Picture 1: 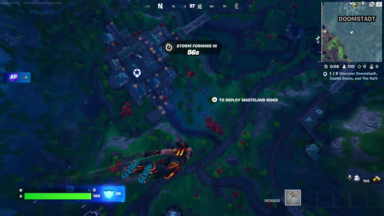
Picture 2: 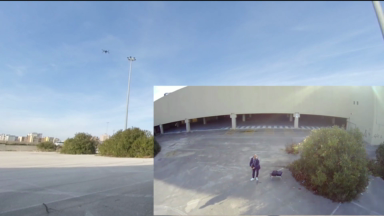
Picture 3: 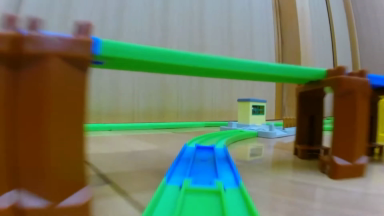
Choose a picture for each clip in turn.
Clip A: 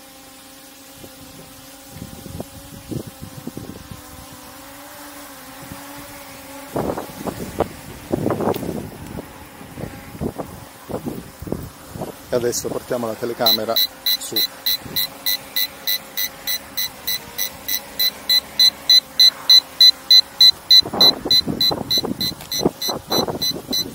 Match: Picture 2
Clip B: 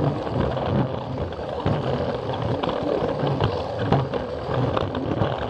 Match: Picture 3